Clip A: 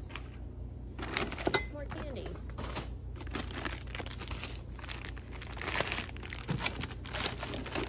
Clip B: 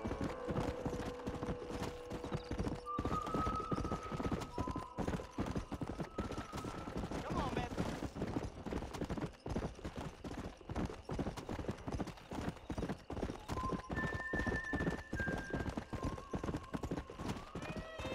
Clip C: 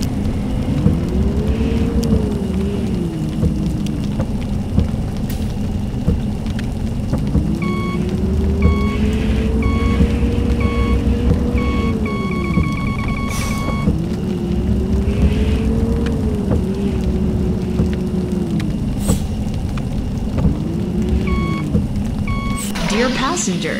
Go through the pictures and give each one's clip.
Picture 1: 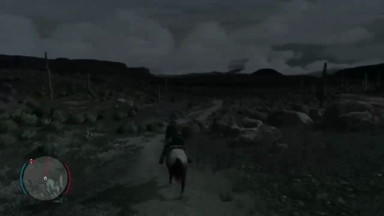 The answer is B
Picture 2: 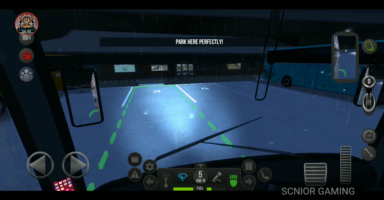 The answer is C